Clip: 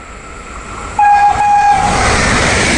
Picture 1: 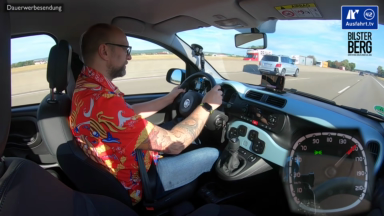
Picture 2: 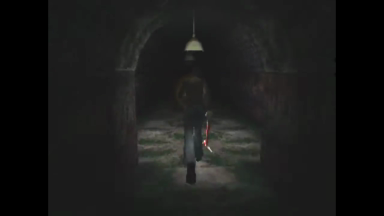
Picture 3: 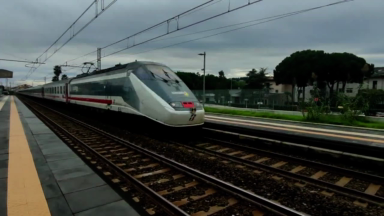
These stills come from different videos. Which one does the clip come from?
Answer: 3